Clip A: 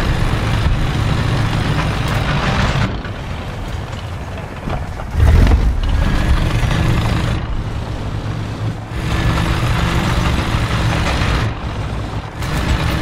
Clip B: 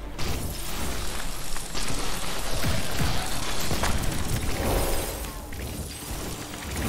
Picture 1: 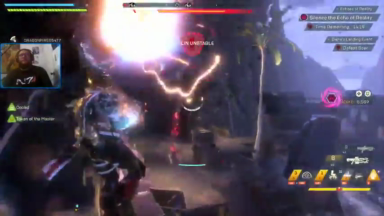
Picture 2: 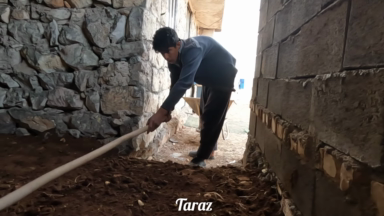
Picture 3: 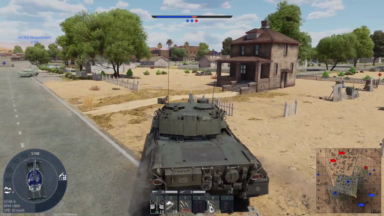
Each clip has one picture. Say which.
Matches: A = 3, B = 1